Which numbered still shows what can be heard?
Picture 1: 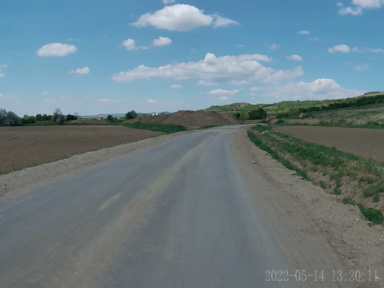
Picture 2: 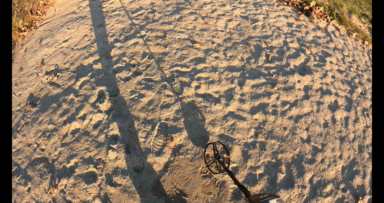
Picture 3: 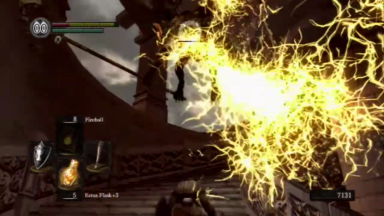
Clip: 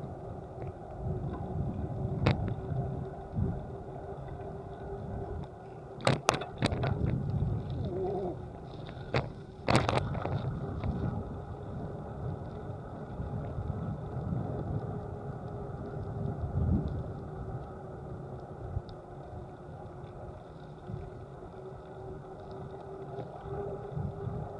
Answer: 1